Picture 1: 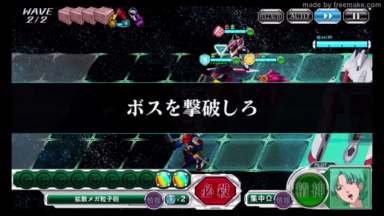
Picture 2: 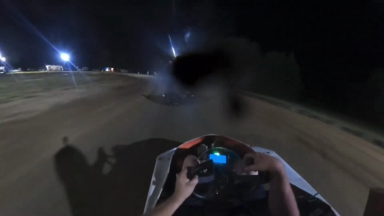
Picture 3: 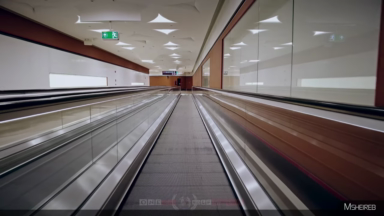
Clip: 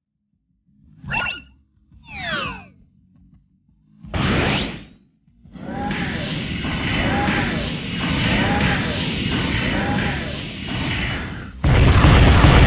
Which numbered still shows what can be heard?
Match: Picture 1